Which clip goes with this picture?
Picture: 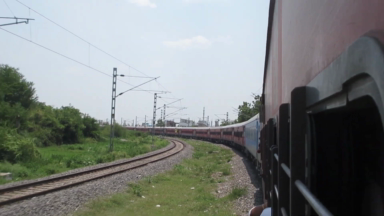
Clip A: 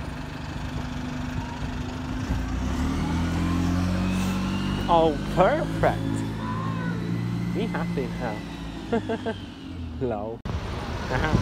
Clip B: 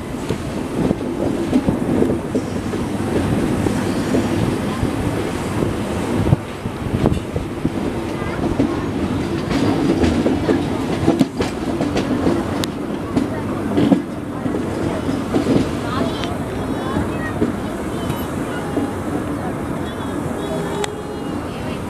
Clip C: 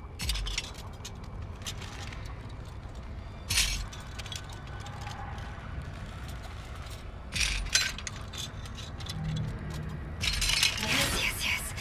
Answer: B